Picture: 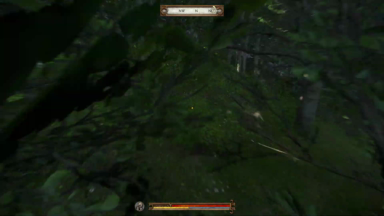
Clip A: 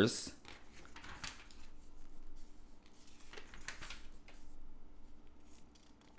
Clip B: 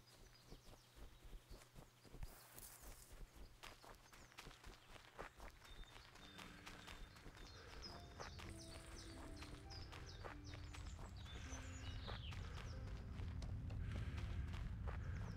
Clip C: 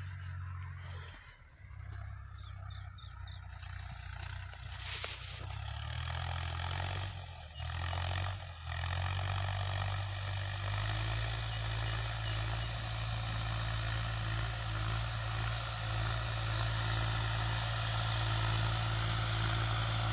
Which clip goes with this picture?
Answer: B